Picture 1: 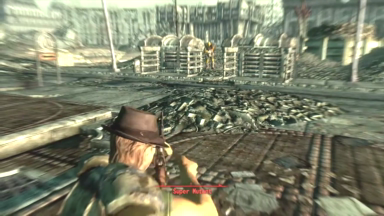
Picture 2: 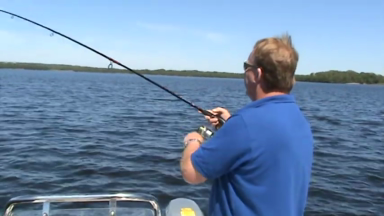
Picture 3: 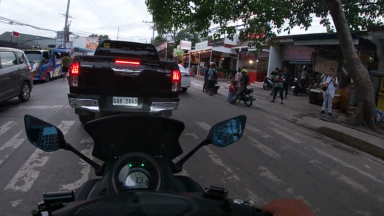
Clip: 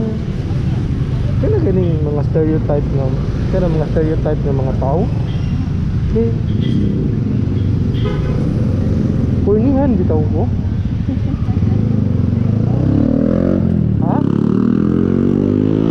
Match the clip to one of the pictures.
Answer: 3